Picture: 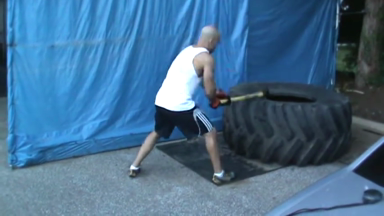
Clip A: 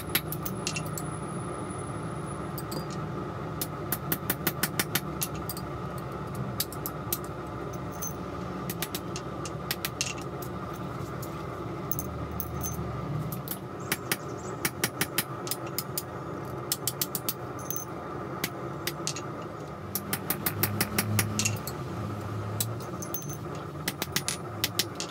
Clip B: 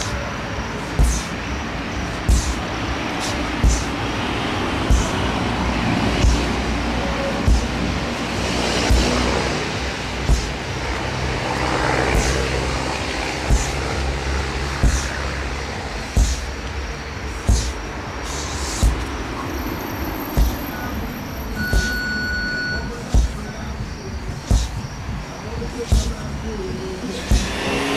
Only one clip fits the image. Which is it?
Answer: B